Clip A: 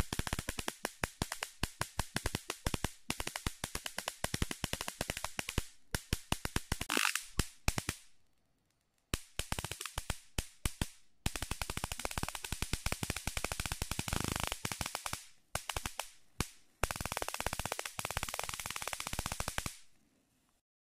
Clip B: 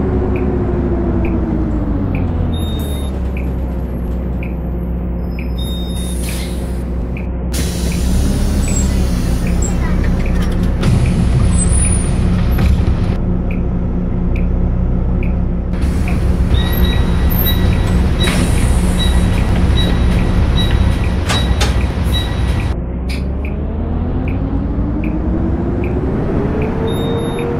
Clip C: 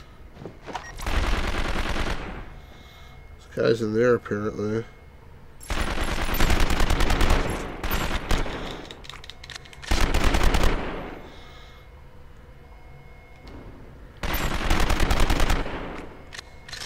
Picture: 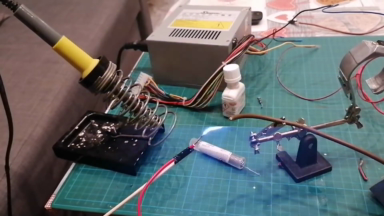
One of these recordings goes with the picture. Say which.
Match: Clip A